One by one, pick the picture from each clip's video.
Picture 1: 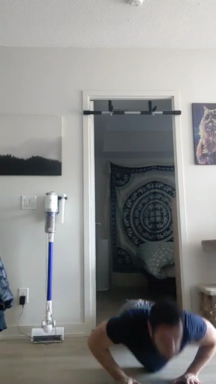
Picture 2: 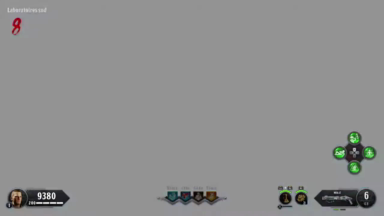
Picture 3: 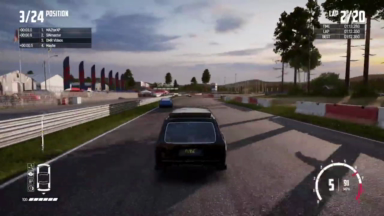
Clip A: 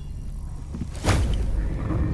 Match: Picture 2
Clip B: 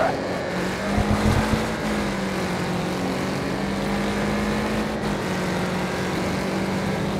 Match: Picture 3